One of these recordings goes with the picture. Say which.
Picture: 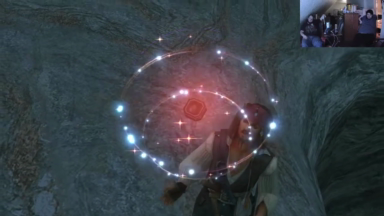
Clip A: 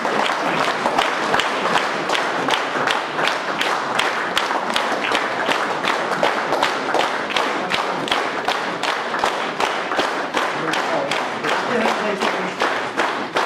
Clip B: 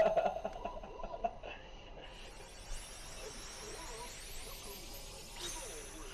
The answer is B